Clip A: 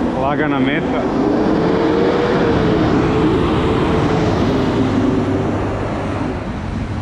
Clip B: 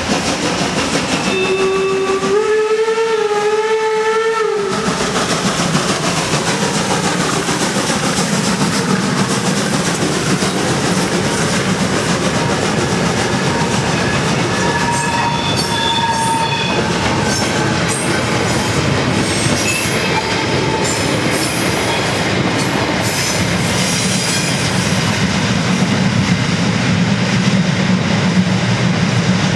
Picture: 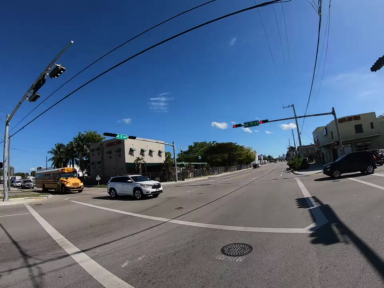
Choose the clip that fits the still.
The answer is A